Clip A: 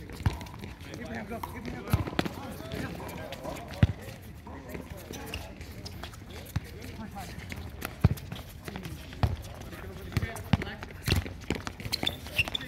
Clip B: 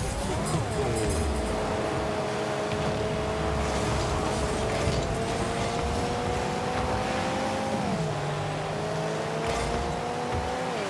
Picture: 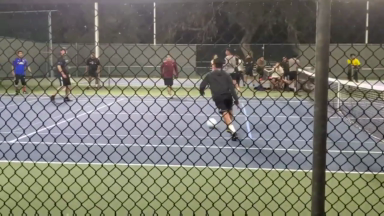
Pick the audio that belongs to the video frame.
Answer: A